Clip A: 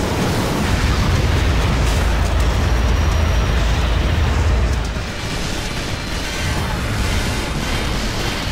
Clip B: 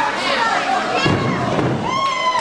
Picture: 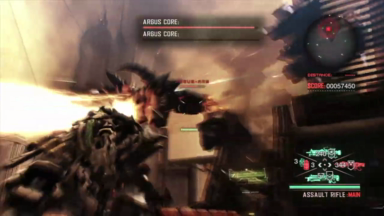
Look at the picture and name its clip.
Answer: A